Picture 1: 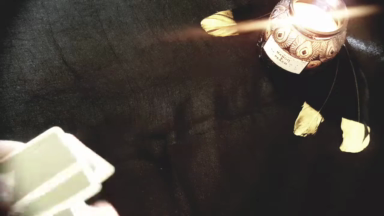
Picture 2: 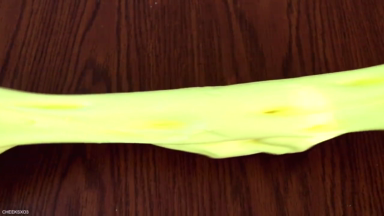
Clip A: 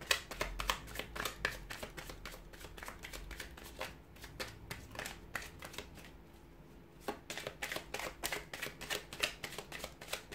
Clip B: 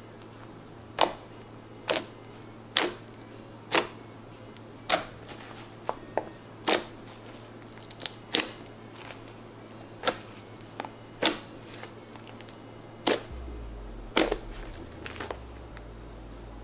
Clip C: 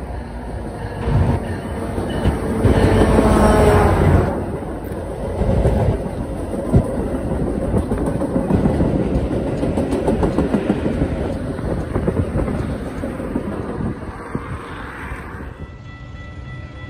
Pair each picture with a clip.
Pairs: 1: A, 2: B